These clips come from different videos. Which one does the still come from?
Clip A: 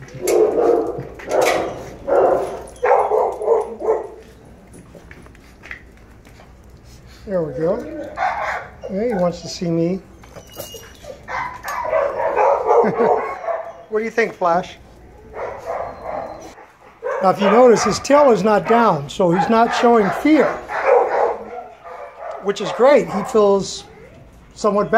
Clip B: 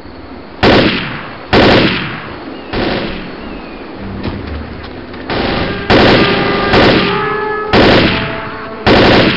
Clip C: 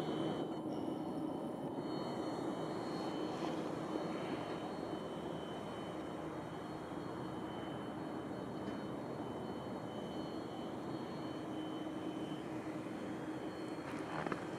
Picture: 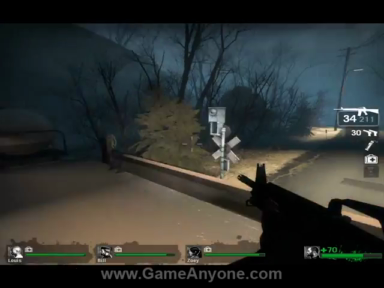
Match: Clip B